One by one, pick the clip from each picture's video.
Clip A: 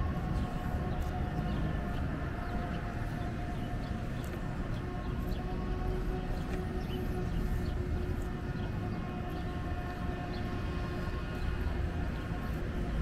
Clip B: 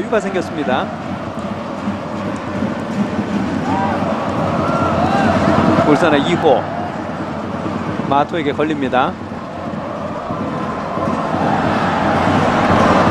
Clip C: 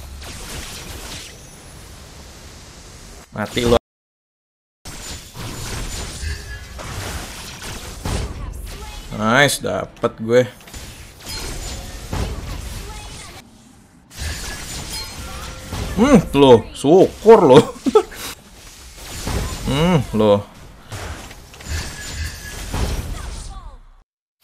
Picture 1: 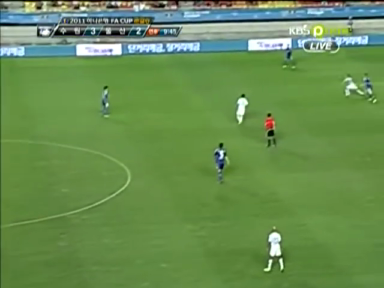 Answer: B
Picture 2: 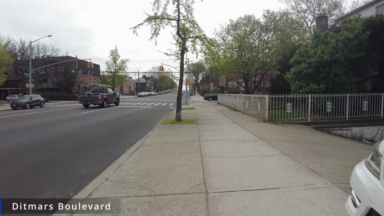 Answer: A